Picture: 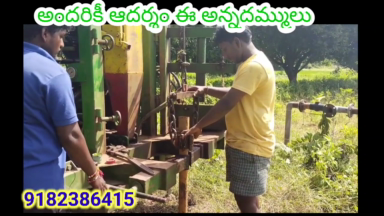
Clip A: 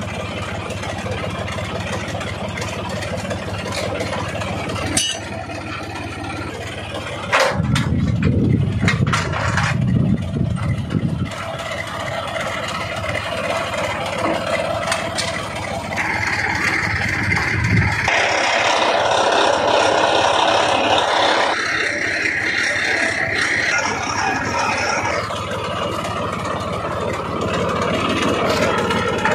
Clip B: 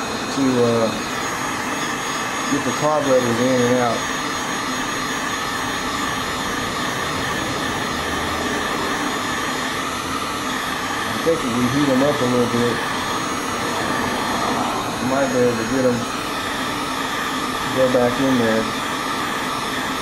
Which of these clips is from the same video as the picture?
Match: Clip A